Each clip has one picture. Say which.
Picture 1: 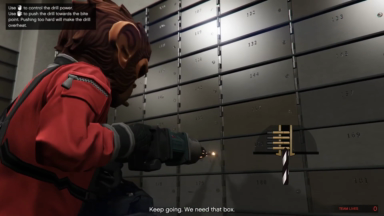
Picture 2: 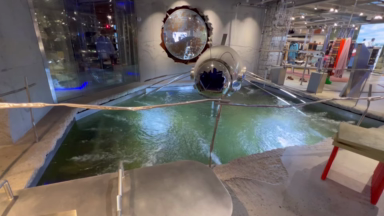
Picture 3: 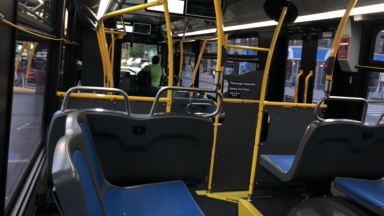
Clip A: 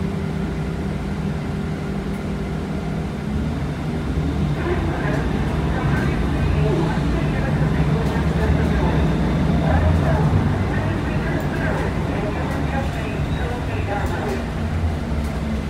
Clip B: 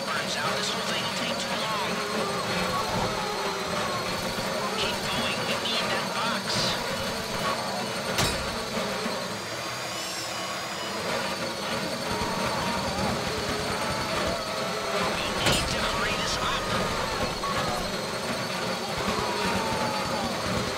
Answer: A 3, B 1